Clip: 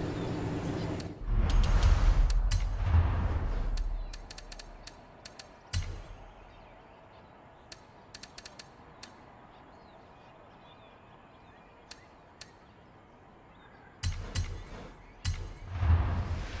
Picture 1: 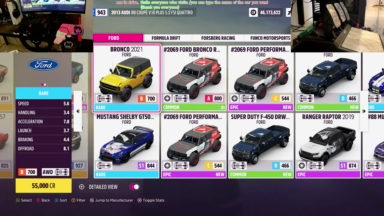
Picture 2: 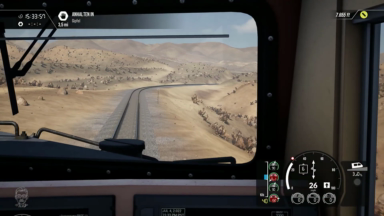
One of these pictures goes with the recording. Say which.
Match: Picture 1